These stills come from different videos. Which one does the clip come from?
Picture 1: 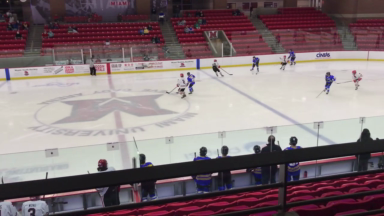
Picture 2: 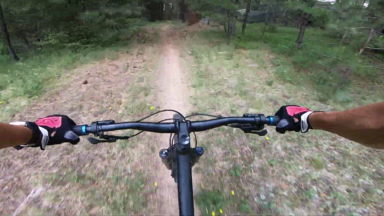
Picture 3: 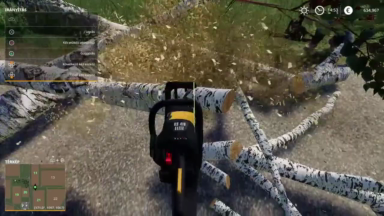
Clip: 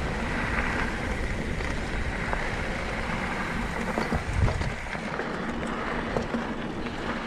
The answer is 2